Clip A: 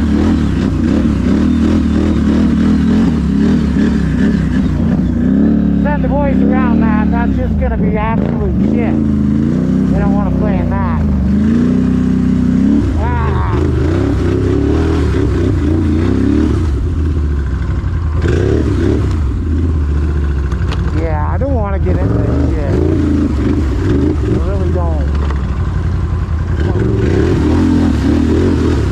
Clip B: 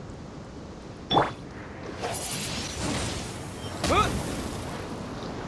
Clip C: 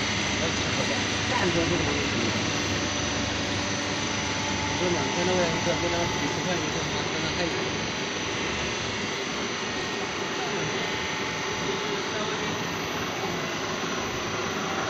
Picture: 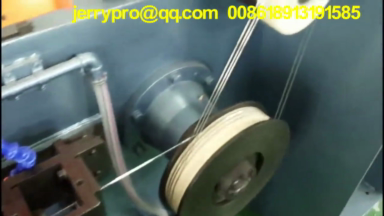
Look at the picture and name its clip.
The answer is C